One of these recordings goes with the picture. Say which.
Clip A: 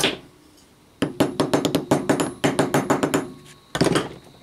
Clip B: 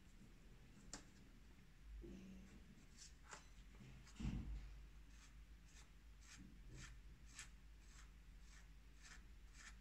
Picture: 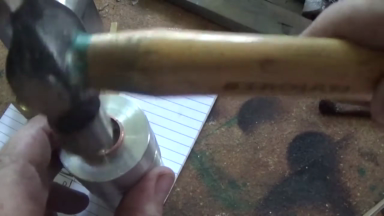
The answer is A